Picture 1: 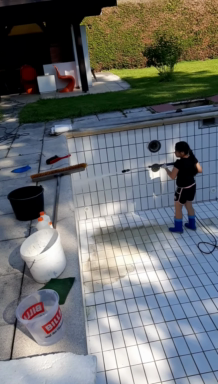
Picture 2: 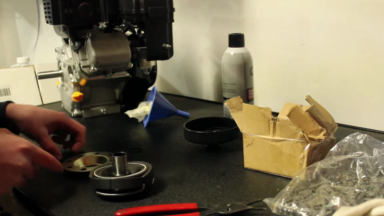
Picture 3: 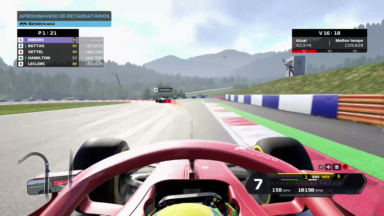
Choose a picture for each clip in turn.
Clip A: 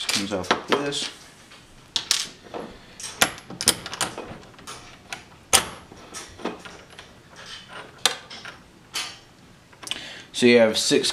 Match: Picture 2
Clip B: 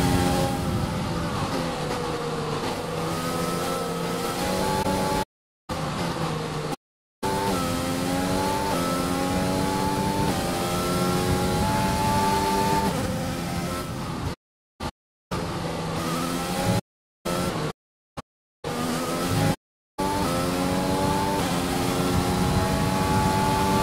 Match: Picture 3